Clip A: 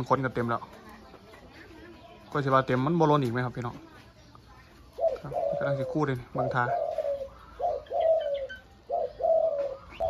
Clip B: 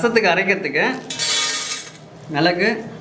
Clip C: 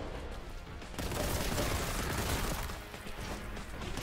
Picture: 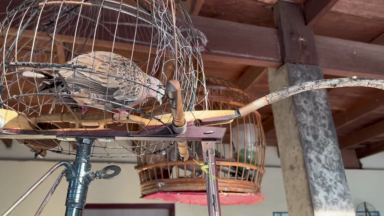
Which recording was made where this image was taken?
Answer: A